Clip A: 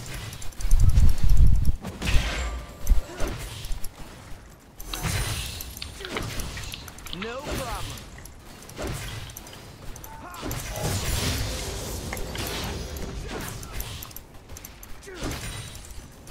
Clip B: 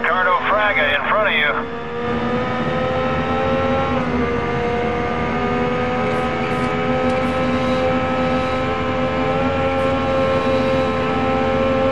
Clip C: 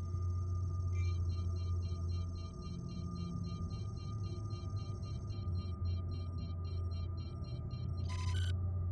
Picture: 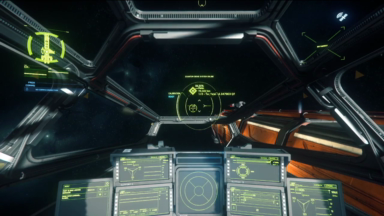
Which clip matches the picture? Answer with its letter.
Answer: C